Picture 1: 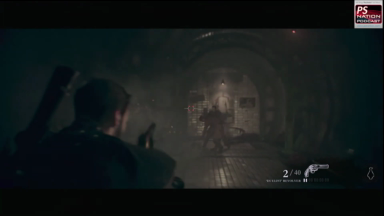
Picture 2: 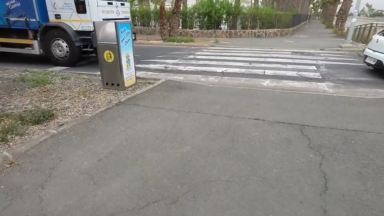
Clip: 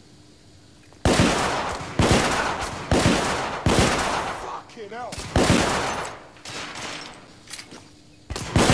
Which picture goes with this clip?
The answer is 1